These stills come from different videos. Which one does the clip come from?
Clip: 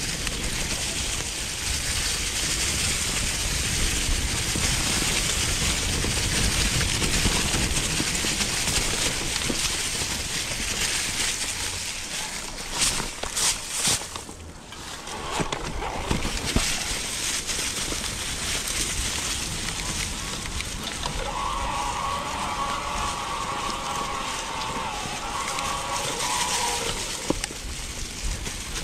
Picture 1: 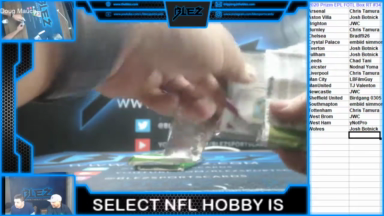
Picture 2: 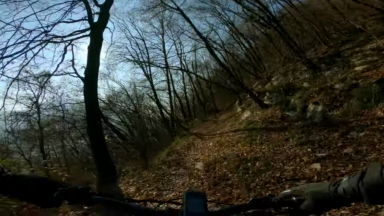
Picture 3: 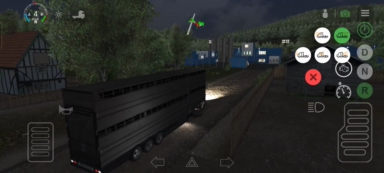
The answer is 2